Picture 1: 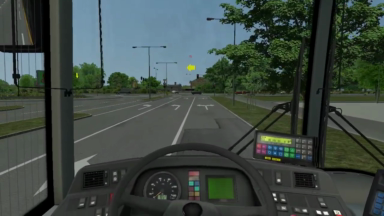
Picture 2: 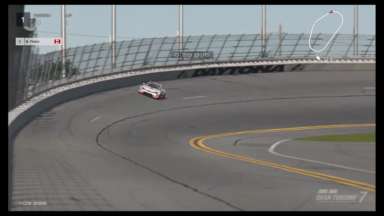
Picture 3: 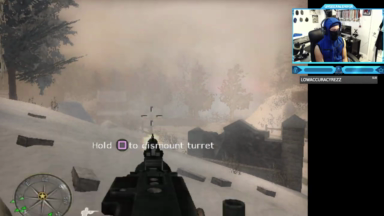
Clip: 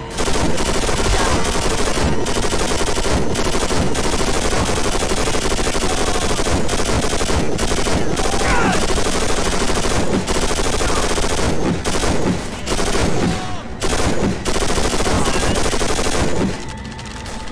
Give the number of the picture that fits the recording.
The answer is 3